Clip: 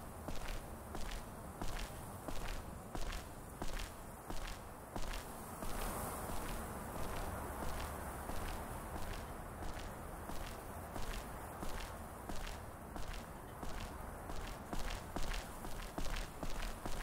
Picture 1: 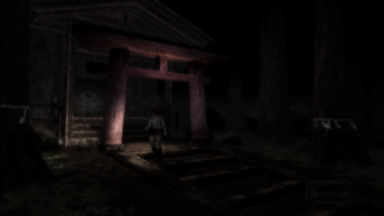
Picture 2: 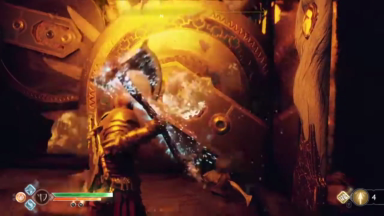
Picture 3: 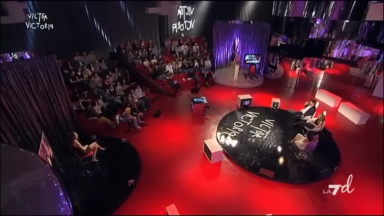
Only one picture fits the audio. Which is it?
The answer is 1